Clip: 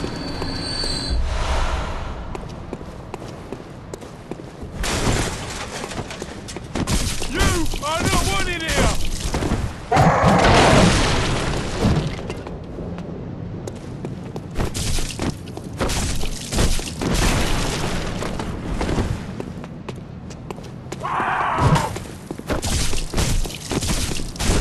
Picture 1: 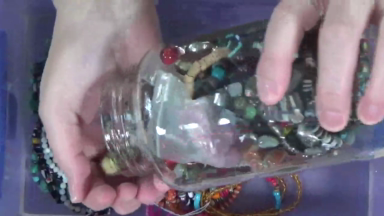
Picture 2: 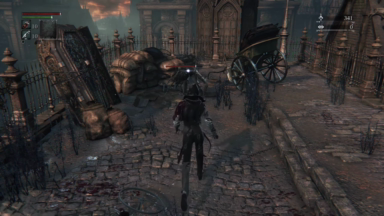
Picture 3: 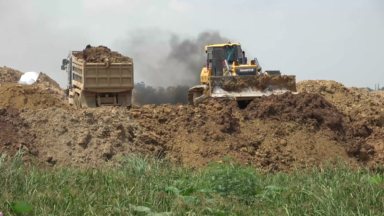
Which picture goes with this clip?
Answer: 2